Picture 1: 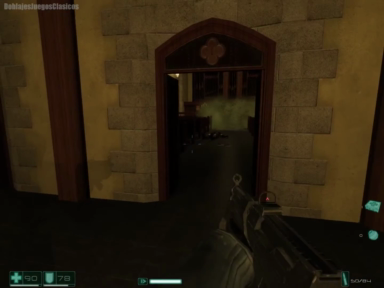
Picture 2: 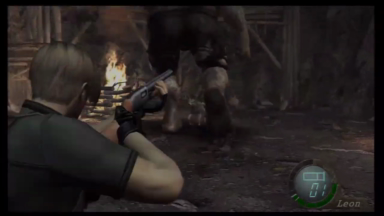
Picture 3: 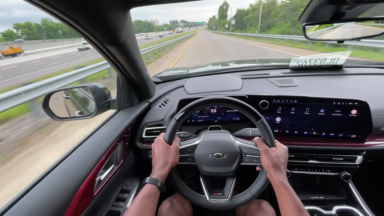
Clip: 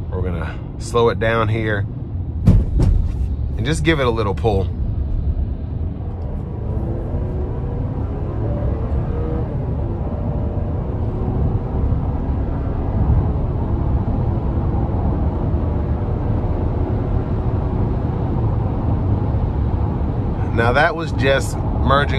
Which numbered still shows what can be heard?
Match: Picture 3